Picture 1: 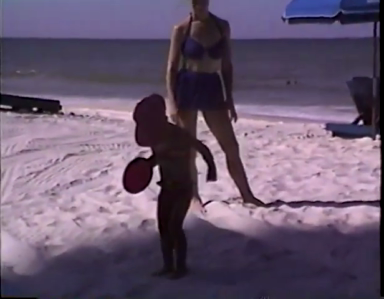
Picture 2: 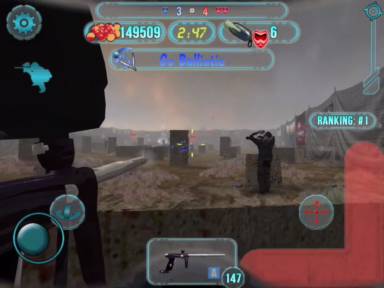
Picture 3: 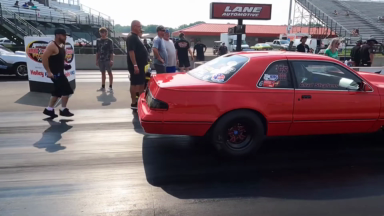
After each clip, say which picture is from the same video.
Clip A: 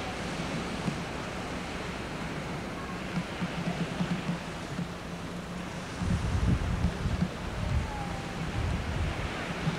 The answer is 1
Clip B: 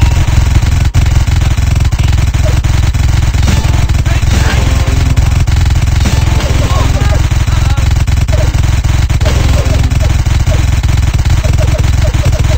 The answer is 2